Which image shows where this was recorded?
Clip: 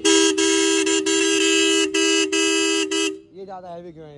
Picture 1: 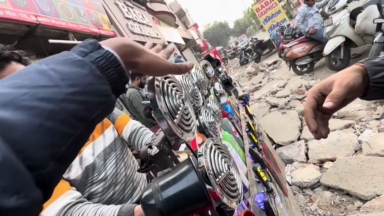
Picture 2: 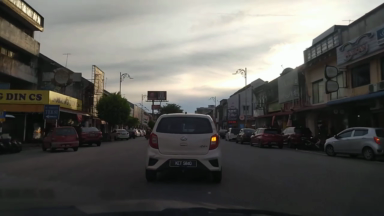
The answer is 1